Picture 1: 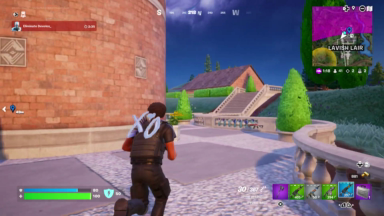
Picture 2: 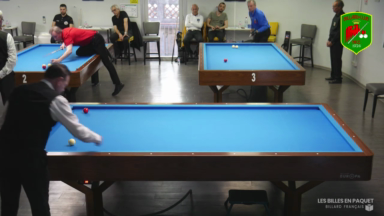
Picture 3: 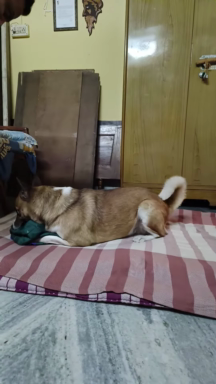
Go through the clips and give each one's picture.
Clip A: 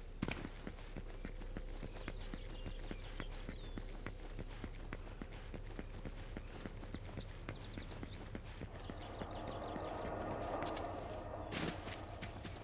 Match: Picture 1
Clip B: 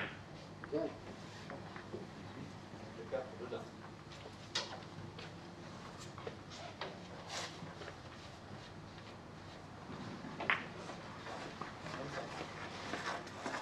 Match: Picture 2